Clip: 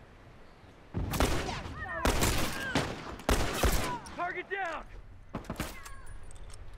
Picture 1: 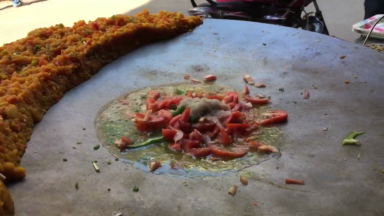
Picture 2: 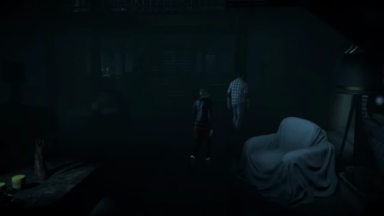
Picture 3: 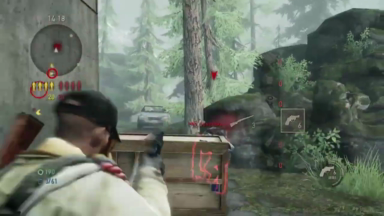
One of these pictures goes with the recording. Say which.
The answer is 3